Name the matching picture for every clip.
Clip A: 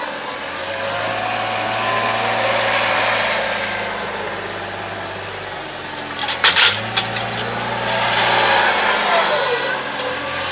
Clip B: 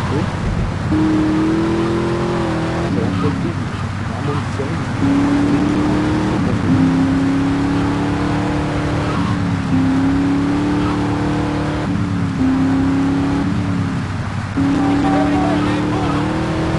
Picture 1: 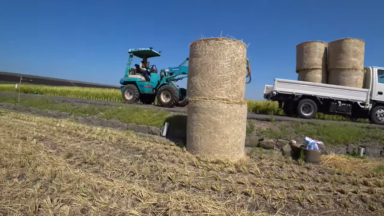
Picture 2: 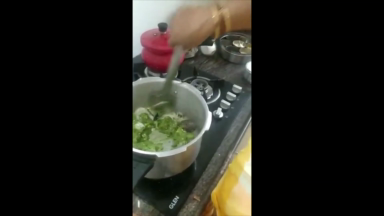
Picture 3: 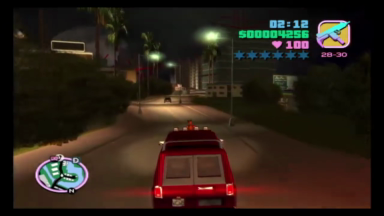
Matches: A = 1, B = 3